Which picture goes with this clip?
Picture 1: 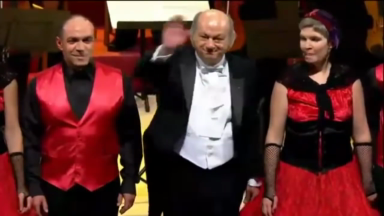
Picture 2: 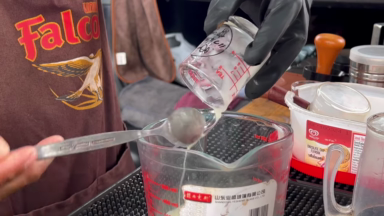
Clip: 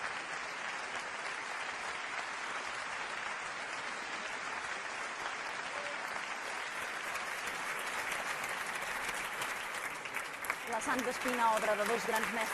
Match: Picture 1